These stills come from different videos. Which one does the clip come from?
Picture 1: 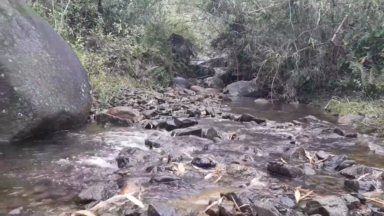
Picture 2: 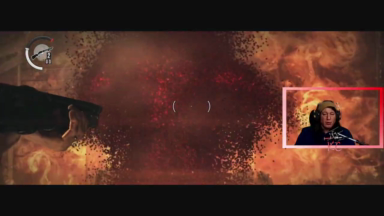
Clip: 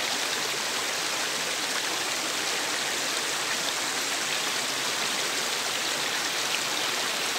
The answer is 1